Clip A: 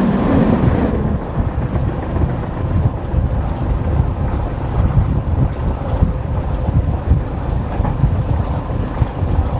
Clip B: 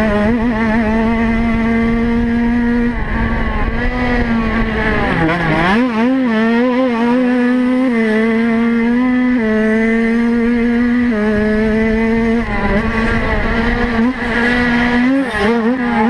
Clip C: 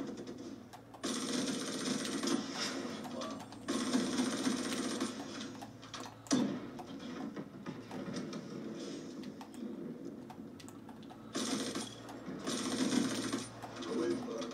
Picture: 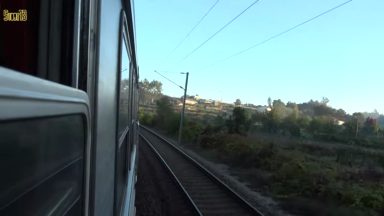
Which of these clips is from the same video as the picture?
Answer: A